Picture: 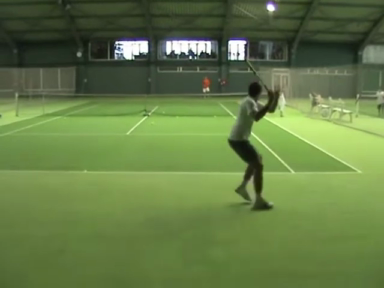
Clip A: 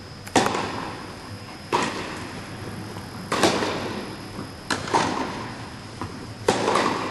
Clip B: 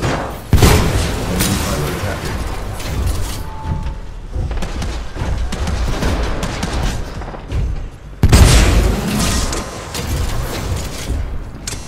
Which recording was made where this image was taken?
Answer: A